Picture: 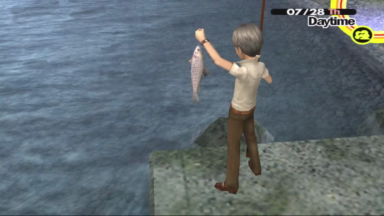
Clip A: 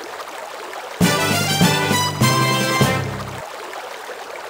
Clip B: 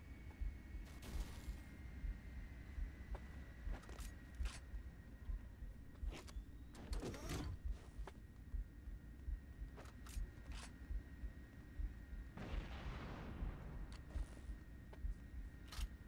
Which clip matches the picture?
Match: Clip A